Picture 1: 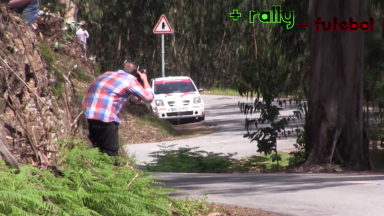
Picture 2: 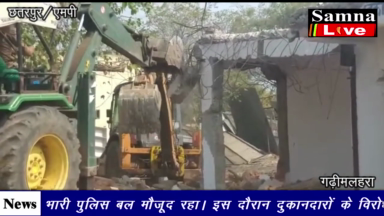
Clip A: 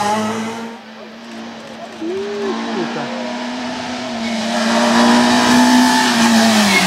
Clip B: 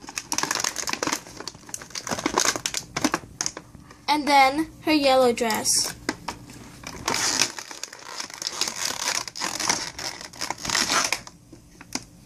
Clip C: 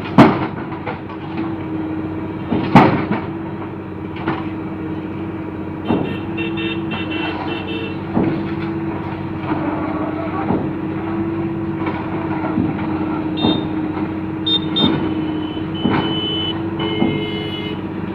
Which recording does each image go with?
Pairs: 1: A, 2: C